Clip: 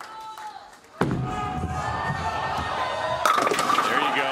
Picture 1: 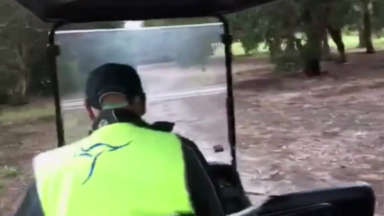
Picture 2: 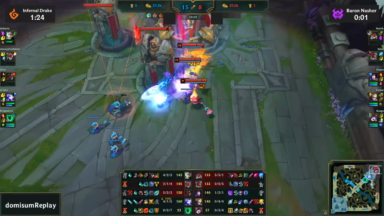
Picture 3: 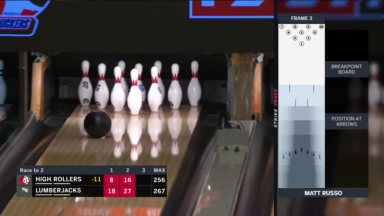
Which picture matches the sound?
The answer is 3